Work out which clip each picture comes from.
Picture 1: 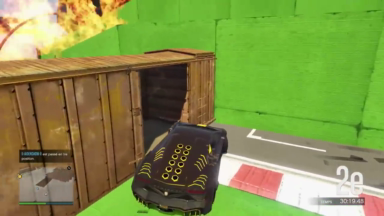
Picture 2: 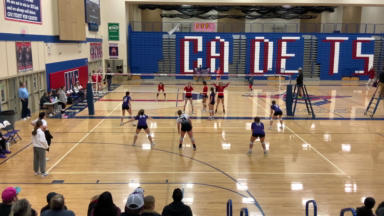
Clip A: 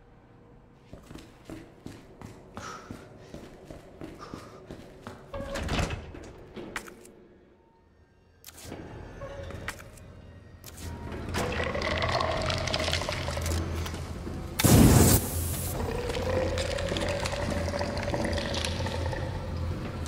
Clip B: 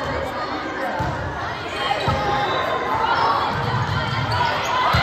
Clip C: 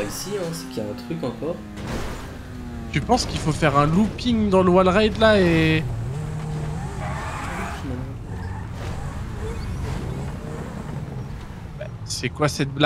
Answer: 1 C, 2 B